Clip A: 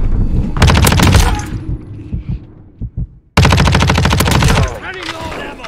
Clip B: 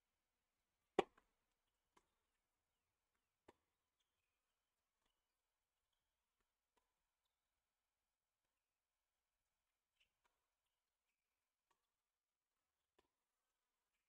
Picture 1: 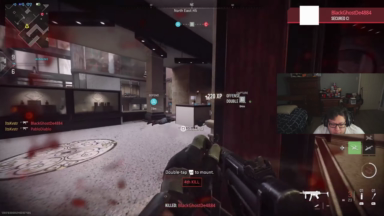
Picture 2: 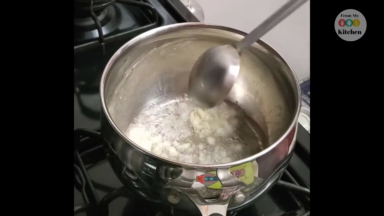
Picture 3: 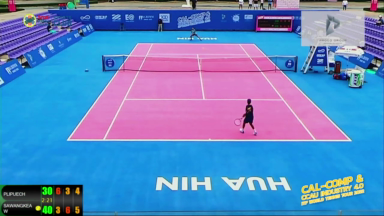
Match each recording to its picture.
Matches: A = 1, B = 3